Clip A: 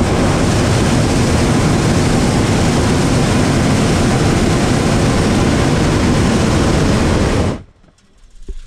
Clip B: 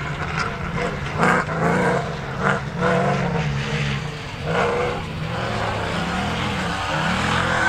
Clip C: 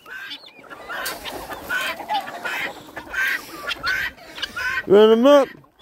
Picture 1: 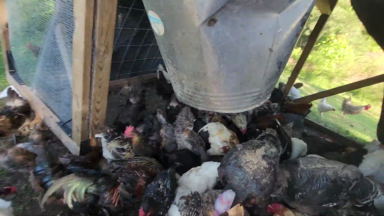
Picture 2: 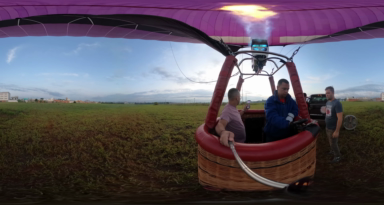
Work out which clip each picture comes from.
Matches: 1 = C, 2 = A